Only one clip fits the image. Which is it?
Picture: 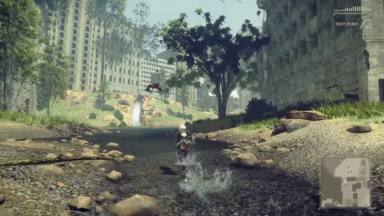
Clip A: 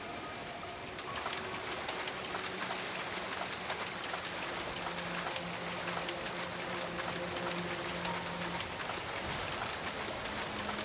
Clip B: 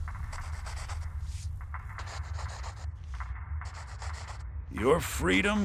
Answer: A